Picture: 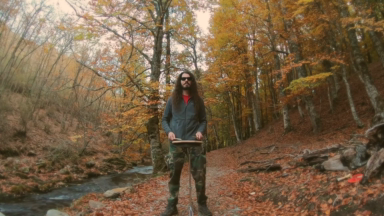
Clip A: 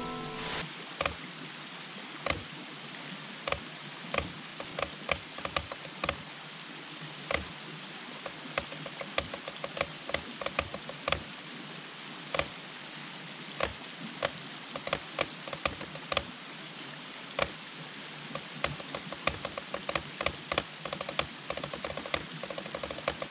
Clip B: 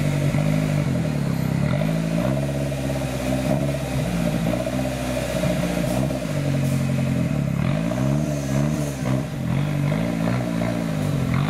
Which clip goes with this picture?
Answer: A